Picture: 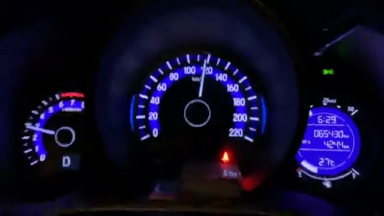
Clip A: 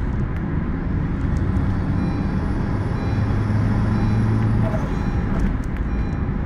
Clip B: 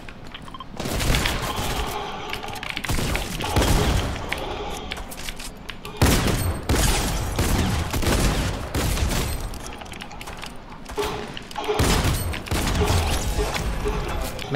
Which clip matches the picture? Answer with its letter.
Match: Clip A